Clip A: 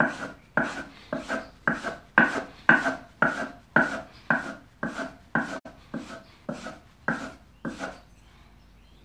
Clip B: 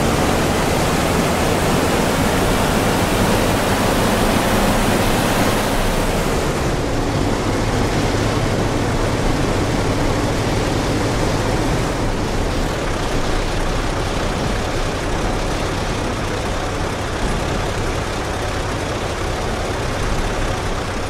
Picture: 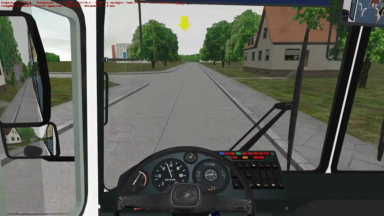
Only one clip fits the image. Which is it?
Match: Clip B